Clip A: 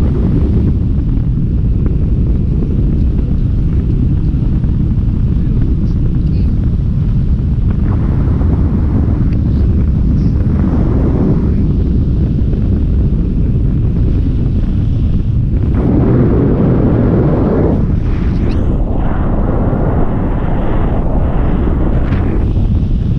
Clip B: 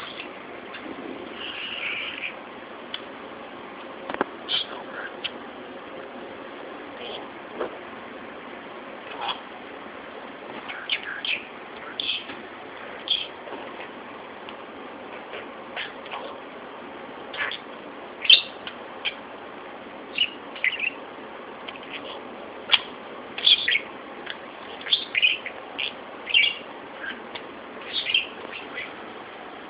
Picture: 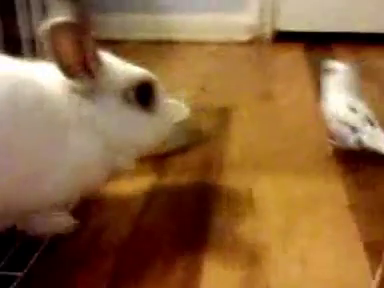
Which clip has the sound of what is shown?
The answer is B